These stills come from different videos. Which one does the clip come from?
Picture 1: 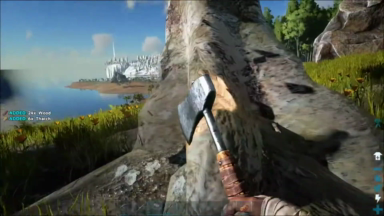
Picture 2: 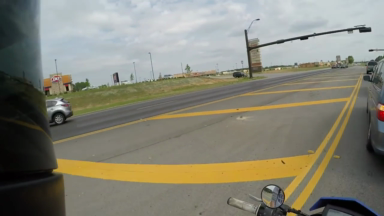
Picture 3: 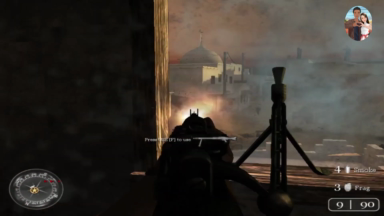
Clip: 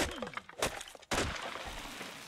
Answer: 1